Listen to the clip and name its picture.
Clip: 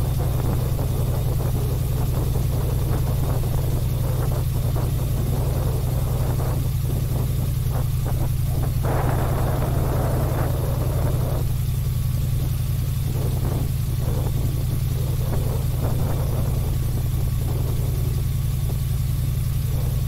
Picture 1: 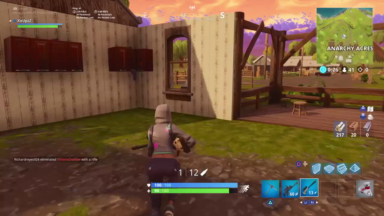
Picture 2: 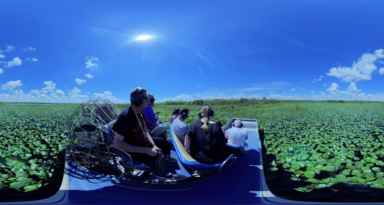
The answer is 2